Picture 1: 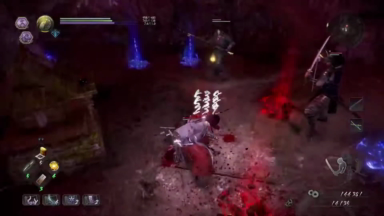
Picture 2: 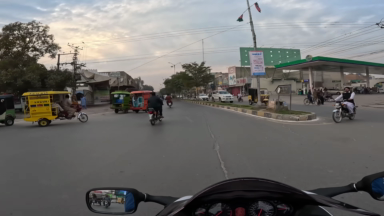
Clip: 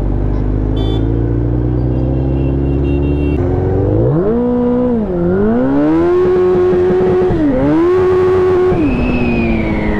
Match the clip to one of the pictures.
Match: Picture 2